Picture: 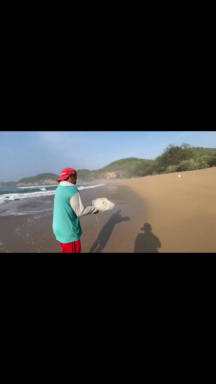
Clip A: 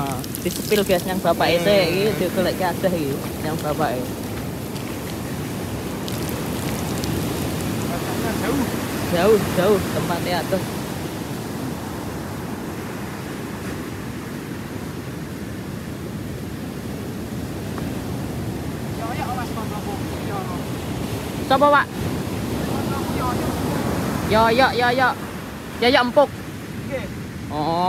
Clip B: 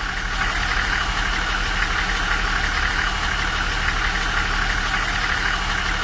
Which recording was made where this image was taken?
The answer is A